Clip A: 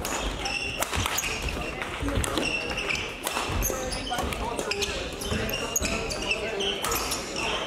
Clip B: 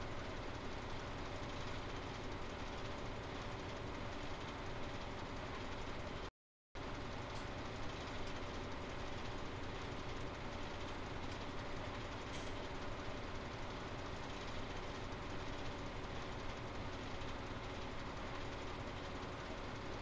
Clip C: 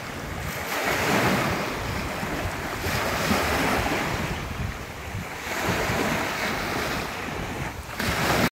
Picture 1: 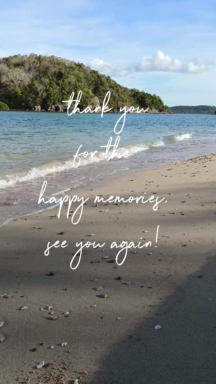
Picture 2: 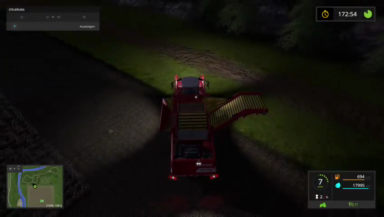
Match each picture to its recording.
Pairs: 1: C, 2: B